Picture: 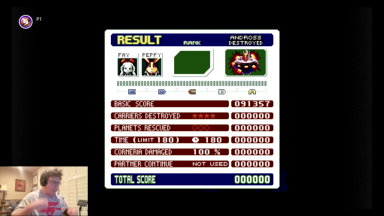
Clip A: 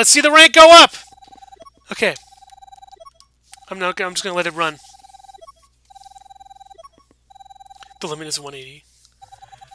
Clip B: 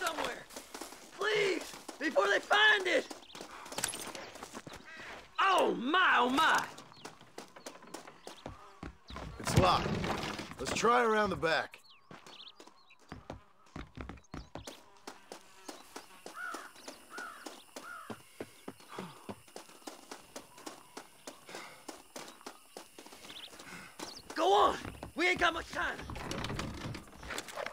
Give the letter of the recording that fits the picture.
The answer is A